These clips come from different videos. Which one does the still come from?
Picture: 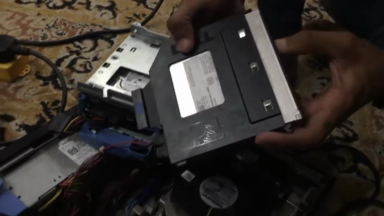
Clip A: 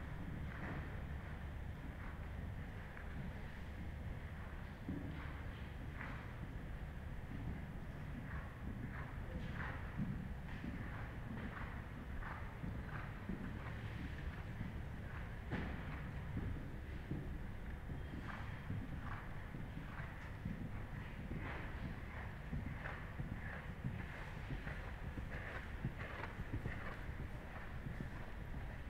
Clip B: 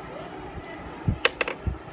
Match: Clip B